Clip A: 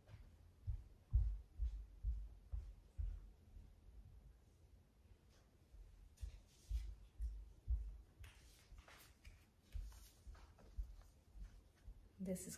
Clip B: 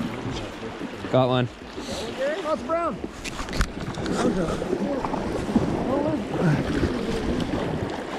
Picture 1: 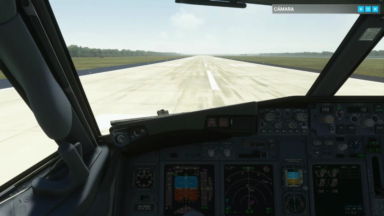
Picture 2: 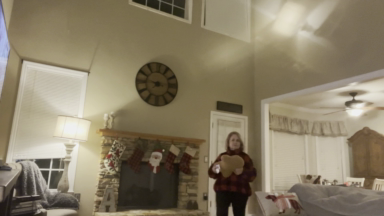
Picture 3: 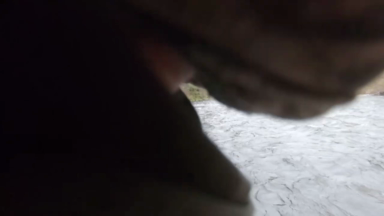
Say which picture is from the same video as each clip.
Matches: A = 2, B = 3